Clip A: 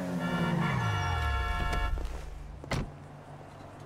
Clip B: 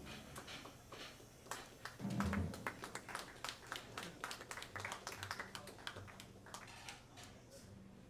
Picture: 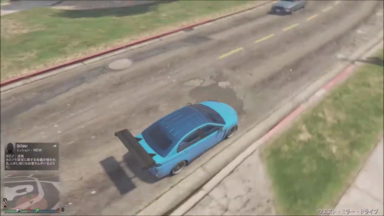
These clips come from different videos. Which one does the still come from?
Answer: A